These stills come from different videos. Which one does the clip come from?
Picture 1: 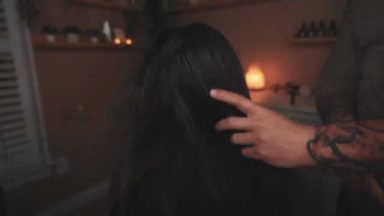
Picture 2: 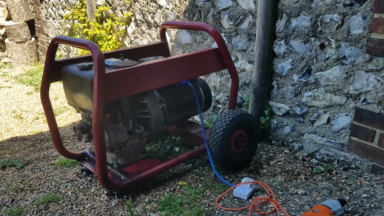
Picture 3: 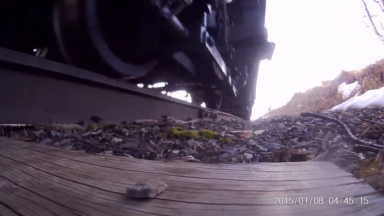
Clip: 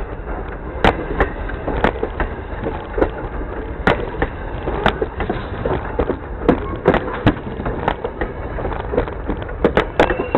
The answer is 3